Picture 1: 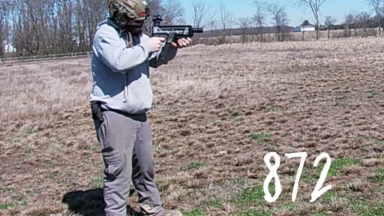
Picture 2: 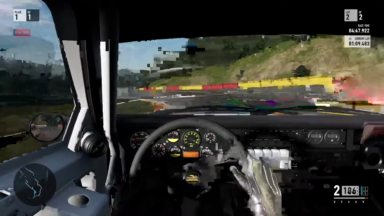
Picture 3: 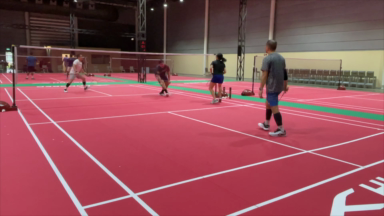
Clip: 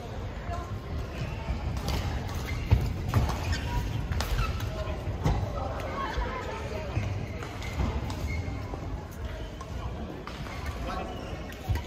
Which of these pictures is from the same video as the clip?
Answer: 3